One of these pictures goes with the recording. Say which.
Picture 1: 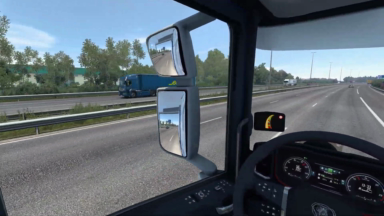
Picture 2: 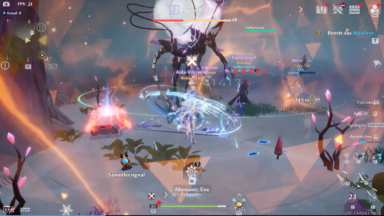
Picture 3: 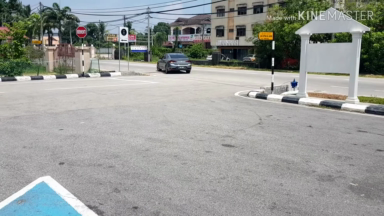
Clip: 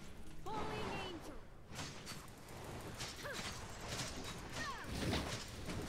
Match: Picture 2